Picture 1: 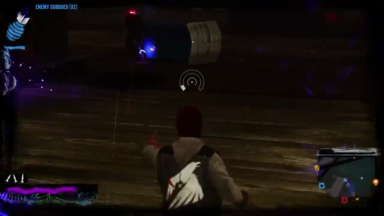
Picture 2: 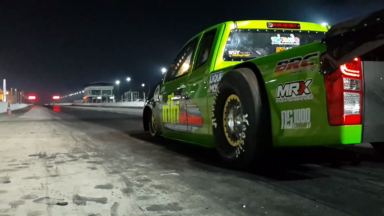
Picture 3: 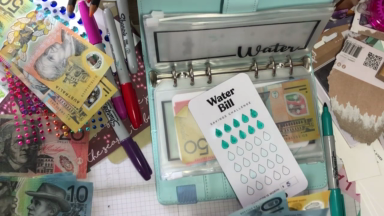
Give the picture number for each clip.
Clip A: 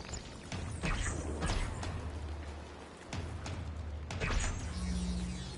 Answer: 1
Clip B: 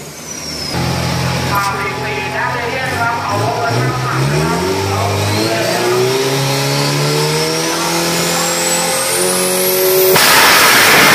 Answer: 2